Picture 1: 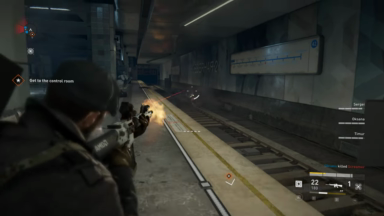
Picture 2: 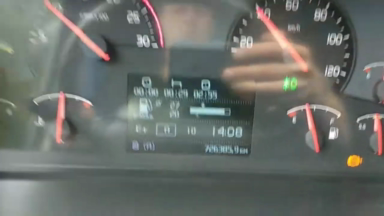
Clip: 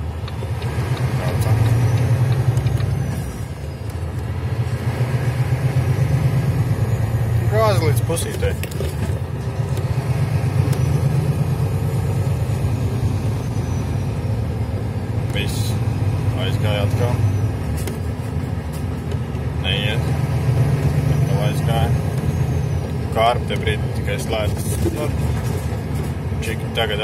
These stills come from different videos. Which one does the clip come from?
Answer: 2